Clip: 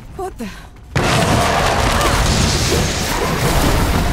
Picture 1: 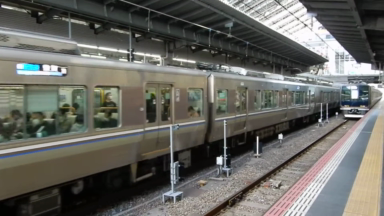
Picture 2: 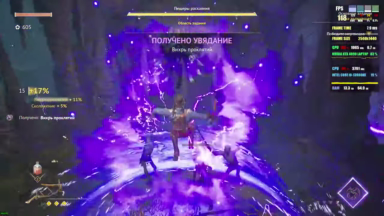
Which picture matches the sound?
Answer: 2